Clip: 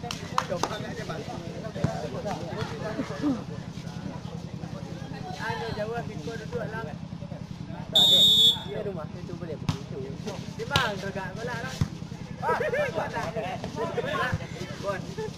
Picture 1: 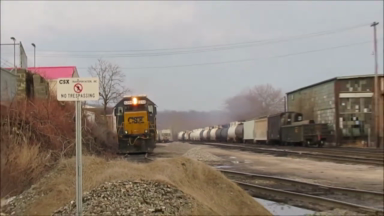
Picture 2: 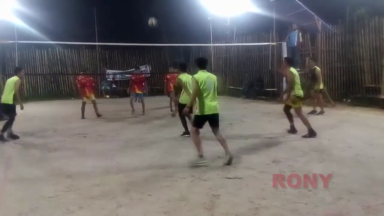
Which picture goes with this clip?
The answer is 2